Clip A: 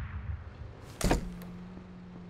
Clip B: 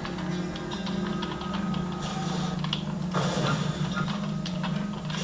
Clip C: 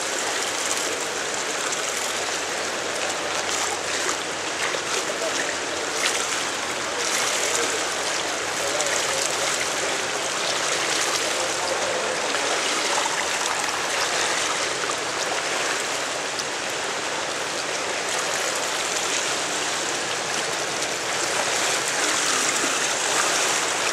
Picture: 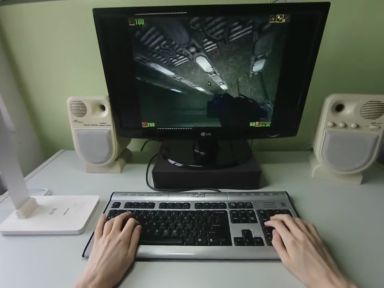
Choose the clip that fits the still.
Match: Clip B